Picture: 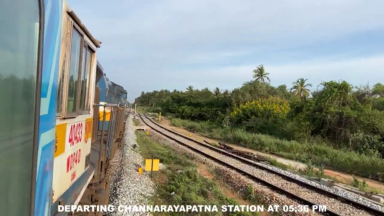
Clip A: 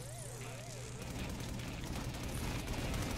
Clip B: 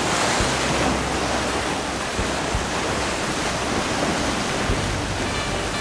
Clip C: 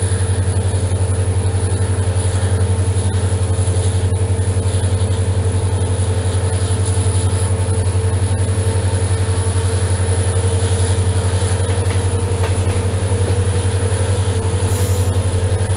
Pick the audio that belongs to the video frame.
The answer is C